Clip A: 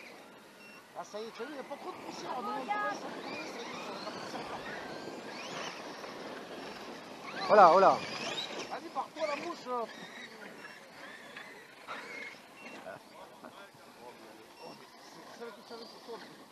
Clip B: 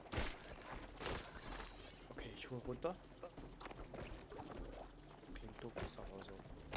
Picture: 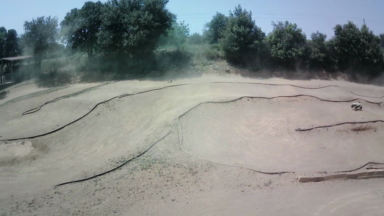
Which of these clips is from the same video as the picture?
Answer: A